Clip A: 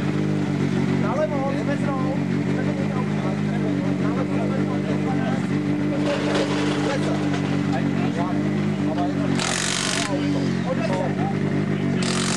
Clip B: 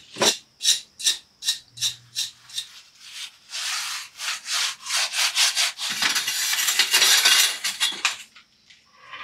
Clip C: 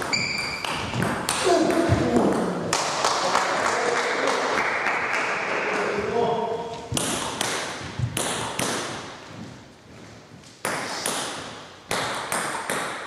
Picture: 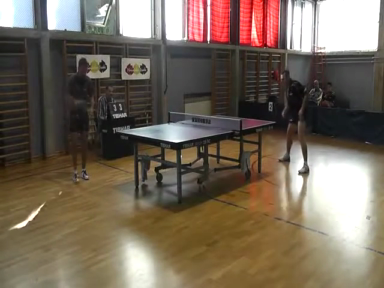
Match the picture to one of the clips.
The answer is C